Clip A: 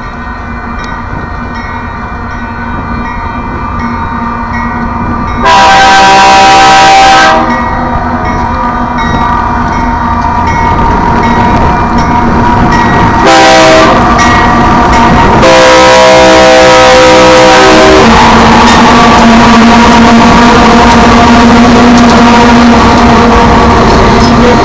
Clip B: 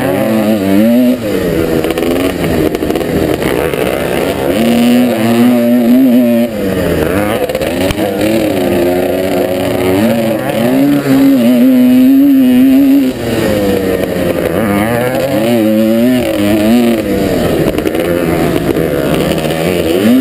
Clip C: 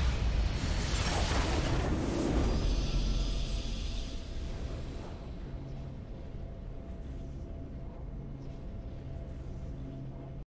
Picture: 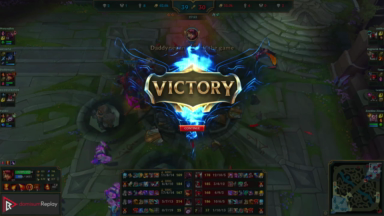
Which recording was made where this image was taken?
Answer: C